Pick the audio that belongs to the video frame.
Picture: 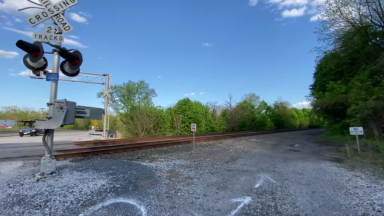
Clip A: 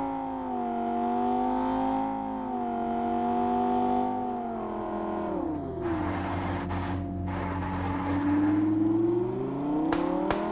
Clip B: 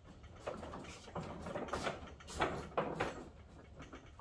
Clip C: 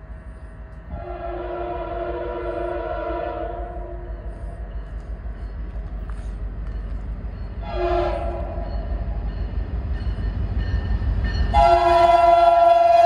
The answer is C